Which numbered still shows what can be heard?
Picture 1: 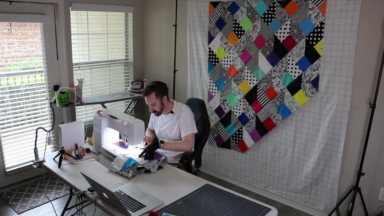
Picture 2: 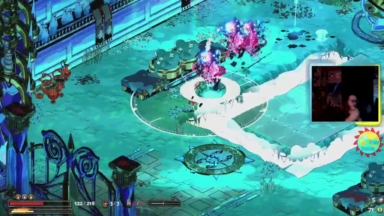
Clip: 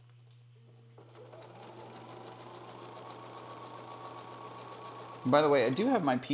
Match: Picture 1